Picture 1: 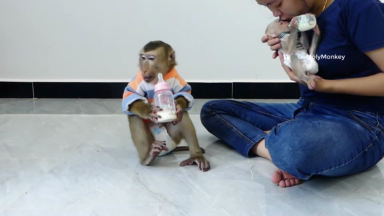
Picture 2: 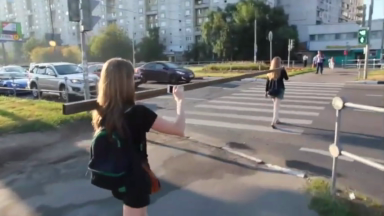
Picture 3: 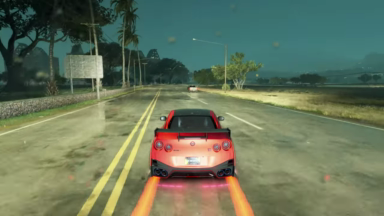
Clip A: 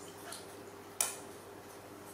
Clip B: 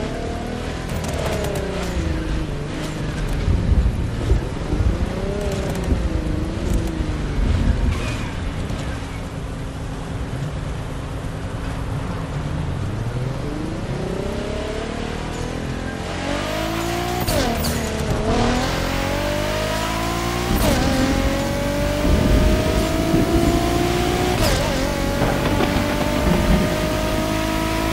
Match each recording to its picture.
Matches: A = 1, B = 3